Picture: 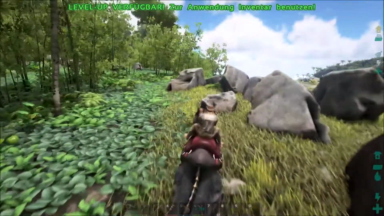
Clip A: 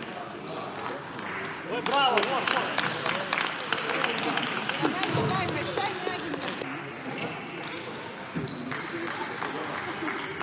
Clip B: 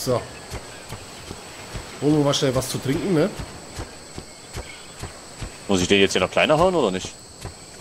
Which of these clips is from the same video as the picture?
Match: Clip B